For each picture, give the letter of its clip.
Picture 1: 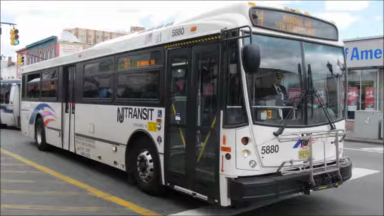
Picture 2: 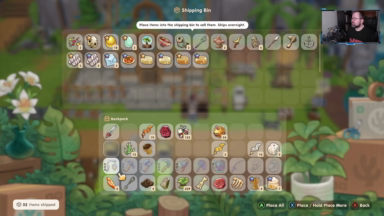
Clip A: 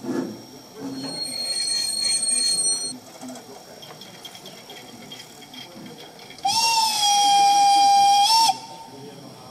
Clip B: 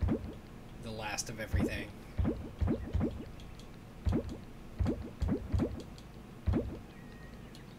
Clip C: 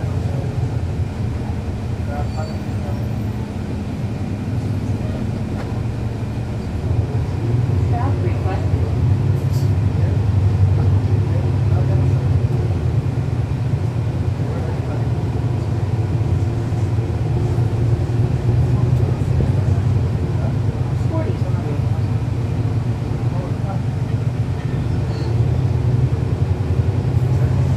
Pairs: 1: C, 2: B